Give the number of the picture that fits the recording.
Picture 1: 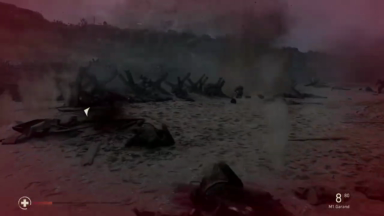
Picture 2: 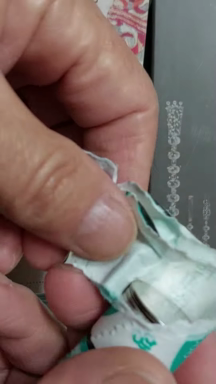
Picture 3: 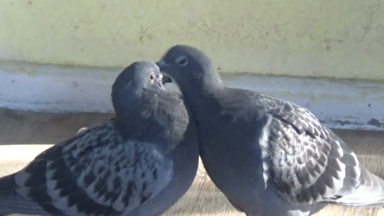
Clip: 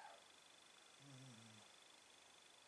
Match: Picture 3